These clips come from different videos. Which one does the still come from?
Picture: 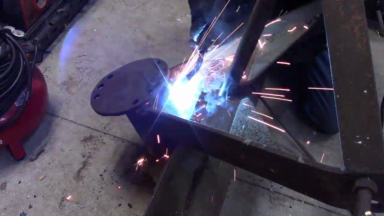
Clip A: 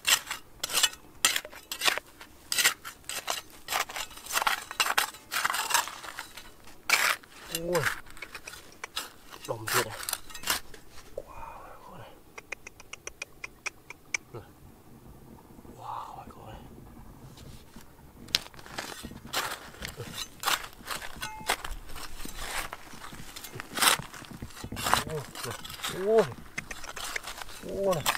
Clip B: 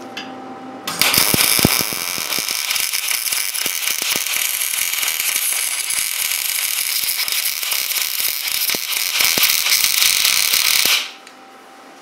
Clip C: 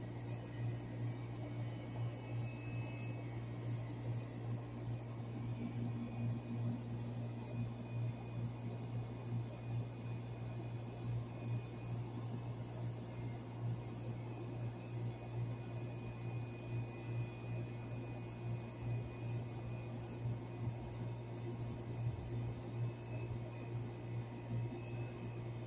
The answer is B